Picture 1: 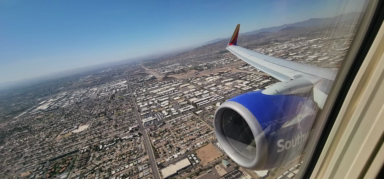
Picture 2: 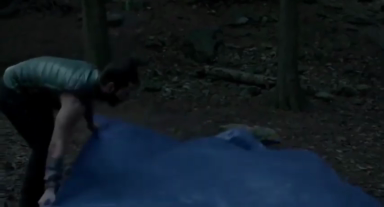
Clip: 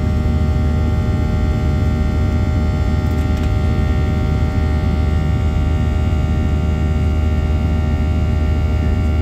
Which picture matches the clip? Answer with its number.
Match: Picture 1